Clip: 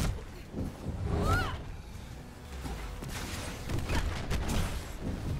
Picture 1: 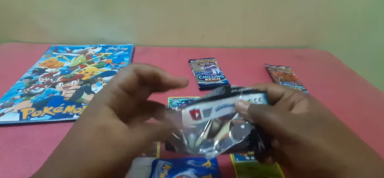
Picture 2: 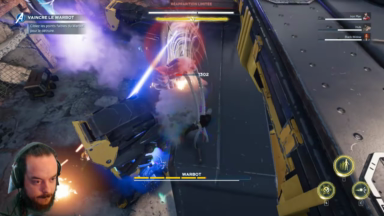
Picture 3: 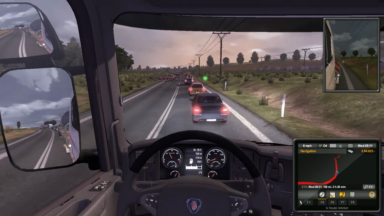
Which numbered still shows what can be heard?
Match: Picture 2